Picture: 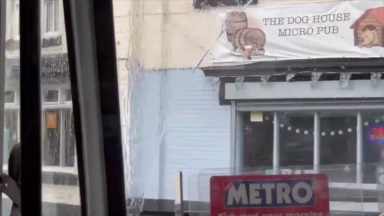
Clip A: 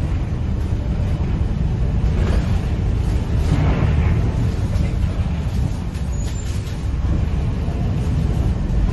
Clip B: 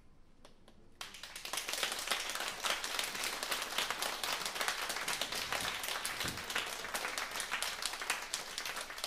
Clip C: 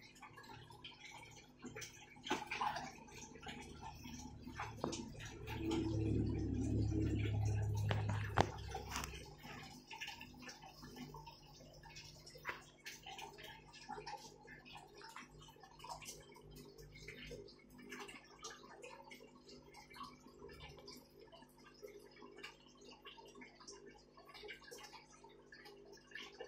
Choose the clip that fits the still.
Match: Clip A